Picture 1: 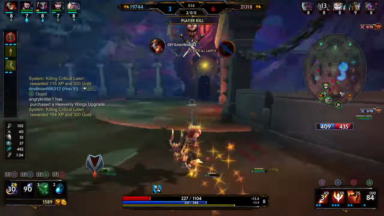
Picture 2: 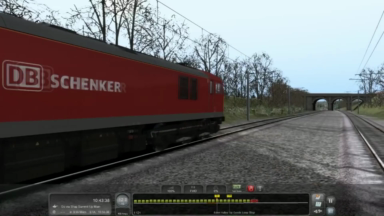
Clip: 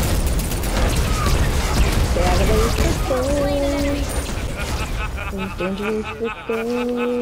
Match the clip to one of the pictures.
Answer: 1